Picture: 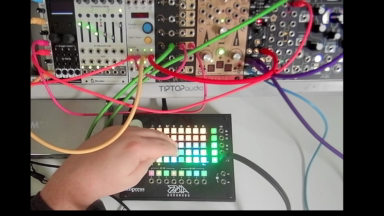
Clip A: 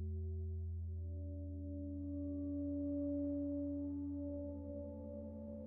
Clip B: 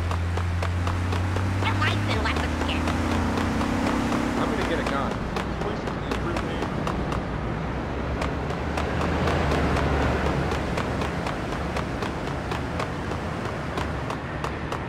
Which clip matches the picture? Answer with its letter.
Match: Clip A